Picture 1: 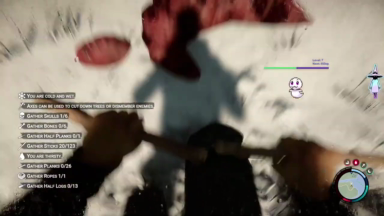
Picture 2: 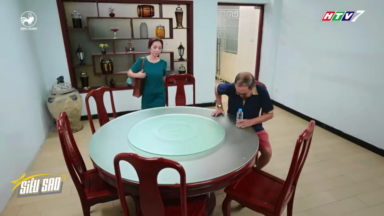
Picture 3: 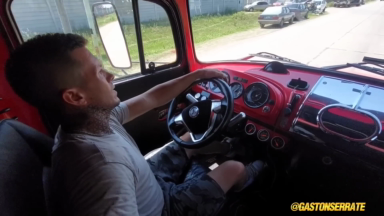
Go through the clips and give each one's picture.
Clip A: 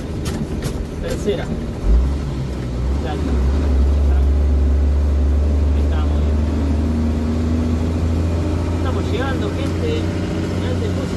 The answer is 3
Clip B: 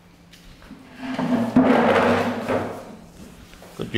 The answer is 2